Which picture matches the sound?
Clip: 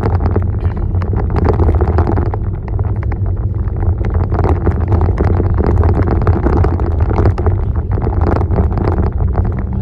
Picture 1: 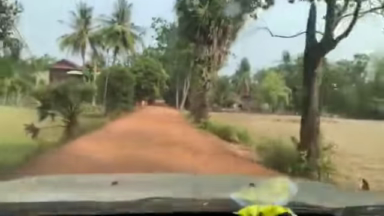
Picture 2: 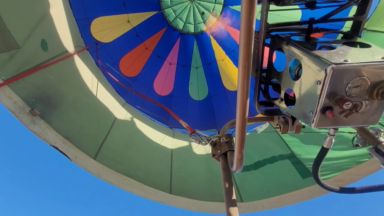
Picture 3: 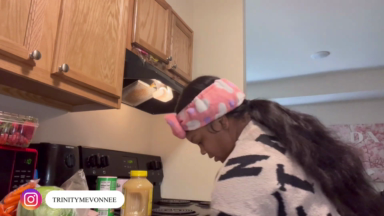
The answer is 1